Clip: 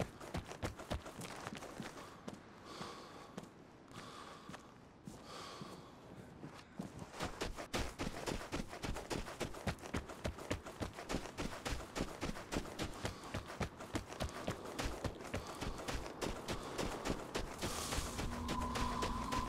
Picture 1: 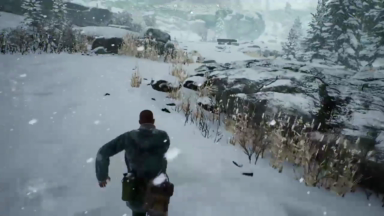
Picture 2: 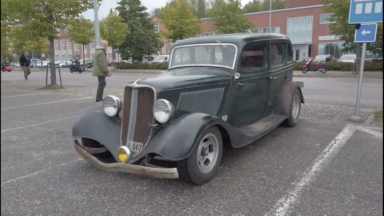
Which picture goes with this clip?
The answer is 1